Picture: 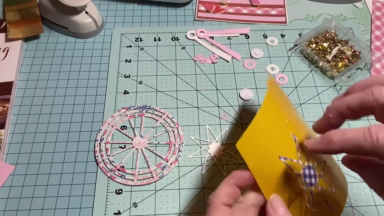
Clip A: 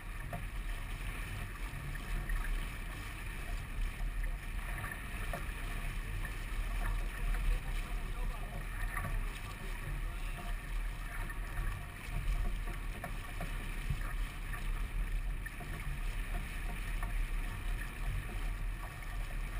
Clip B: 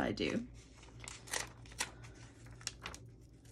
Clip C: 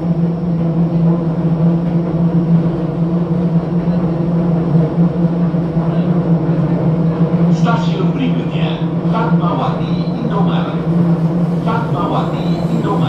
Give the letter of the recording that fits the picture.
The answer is B